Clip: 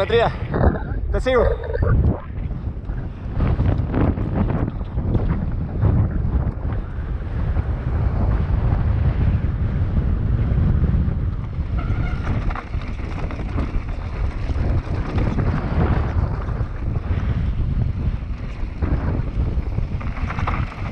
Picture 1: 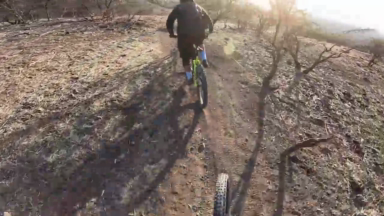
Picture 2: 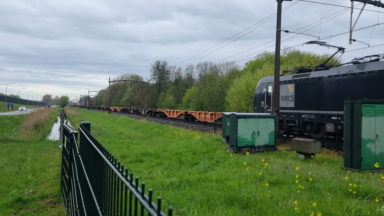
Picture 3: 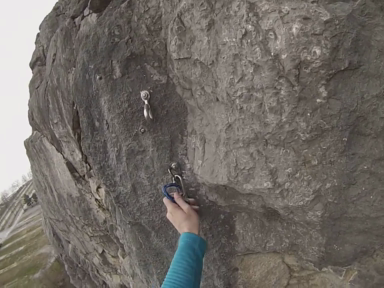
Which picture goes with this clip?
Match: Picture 1